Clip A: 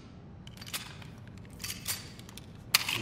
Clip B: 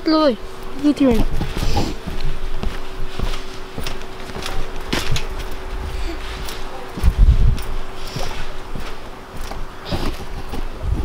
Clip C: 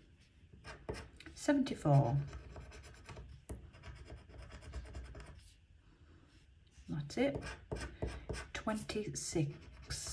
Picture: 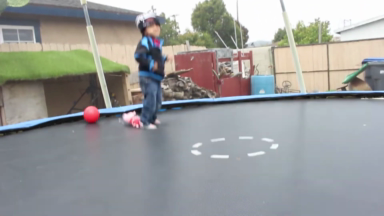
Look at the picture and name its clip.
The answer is B